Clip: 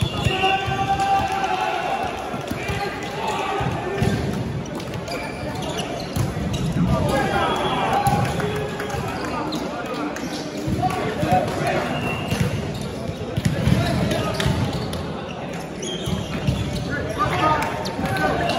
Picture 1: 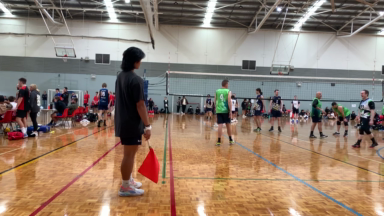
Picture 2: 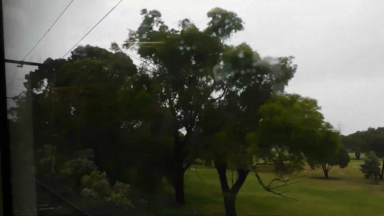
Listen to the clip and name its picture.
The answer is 1